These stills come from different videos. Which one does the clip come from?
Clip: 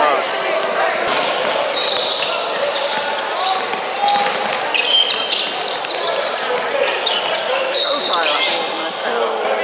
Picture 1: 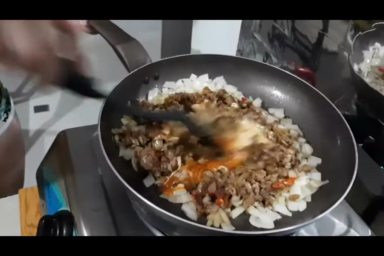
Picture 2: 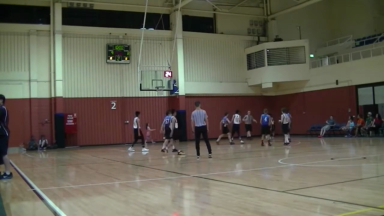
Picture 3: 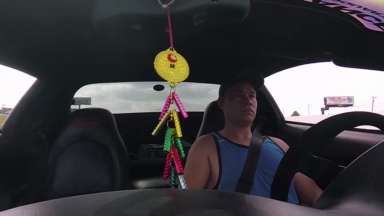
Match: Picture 2